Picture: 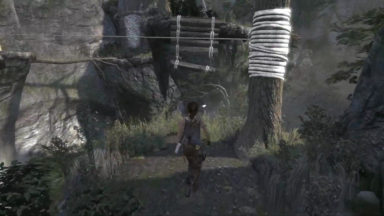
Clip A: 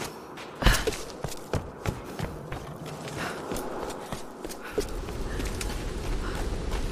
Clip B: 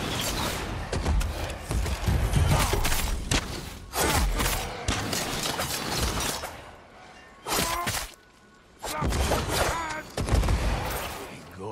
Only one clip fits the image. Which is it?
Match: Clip A